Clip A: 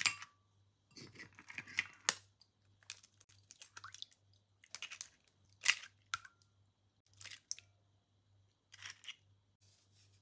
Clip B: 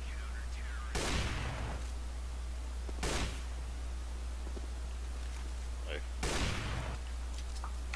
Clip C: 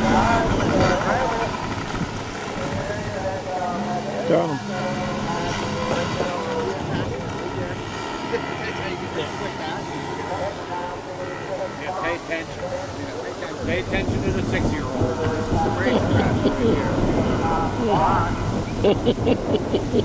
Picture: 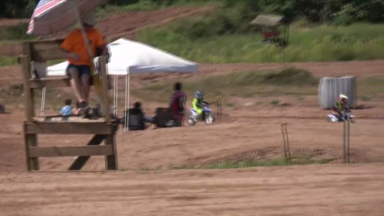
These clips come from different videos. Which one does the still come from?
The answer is C